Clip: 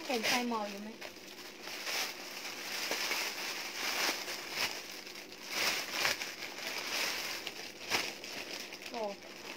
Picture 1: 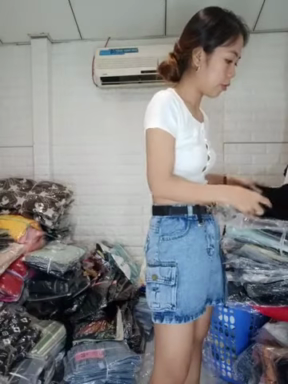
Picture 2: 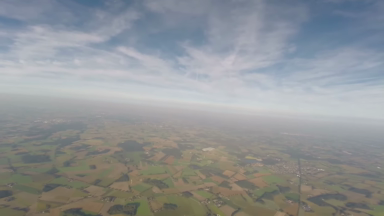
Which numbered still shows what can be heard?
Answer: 1